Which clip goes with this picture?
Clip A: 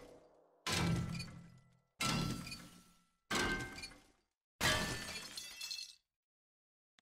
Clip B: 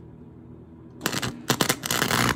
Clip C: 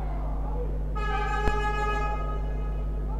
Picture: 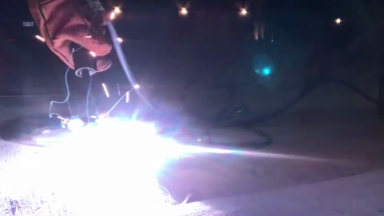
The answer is B